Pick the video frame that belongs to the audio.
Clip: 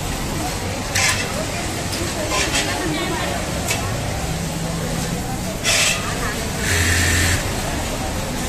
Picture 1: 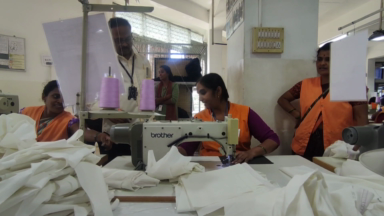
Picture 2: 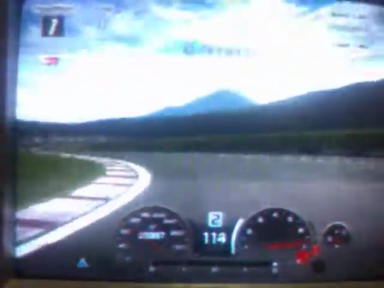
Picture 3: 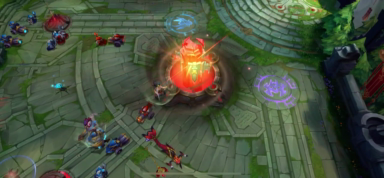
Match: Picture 1